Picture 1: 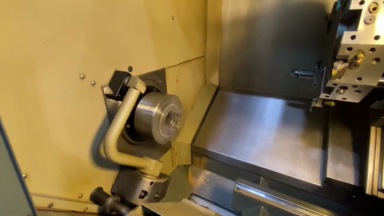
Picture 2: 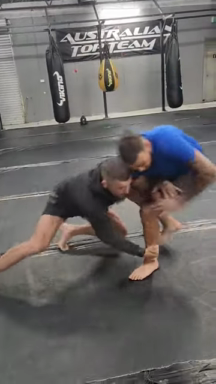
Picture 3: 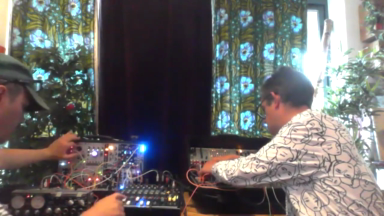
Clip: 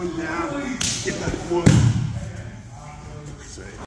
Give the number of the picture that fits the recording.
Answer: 2